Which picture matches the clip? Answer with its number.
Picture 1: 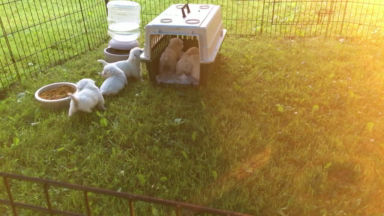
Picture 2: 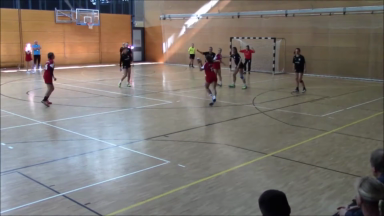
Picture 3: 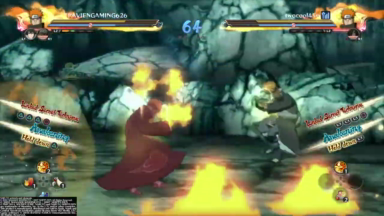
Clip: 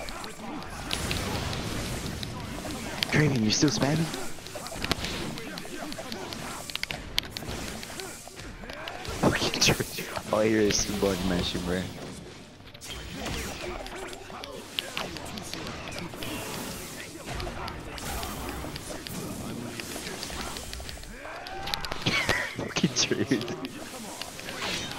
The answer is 3